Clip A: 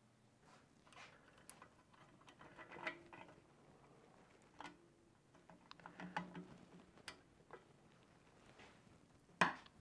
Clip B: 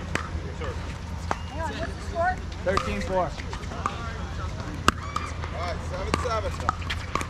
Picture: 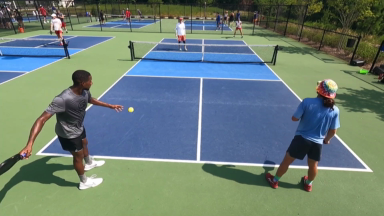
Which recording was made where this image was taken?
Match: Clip B